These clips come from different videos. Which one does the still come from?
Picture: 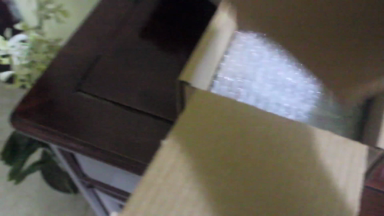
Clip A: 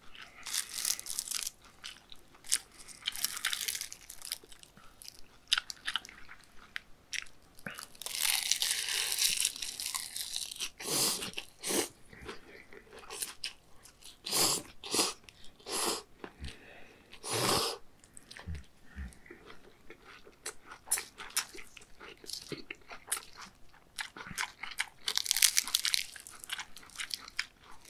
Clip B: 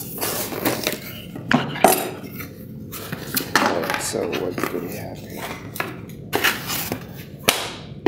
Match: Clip B